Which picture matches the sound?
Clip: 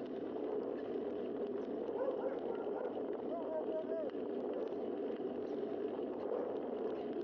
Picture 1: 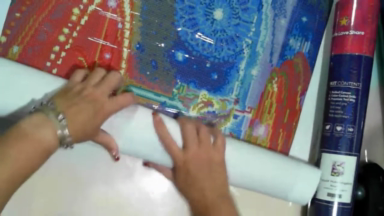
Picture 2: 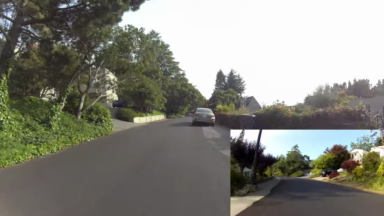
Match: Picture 2